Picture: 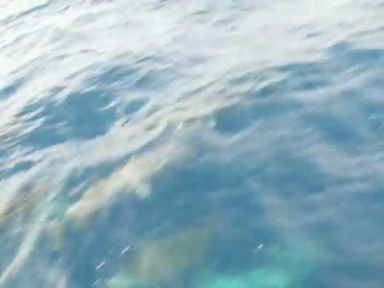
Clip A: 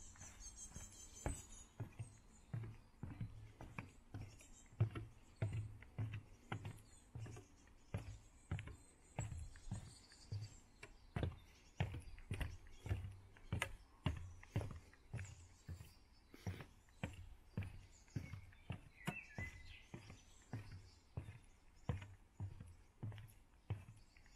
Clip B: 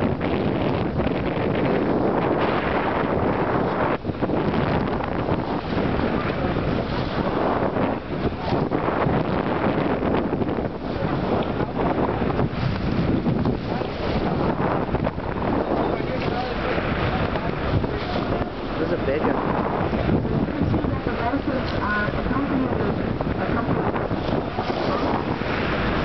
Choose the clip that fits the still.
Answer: B